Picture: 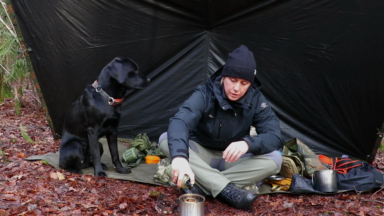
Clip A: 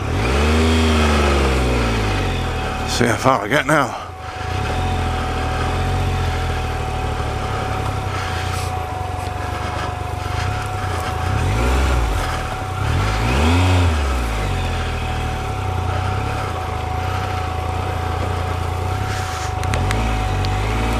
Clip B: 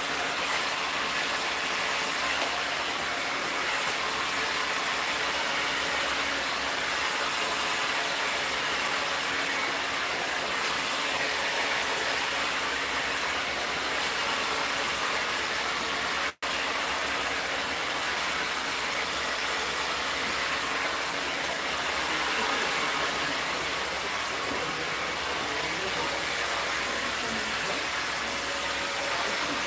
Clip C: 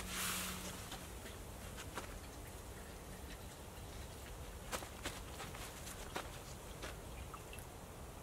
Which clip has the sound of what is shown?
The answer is C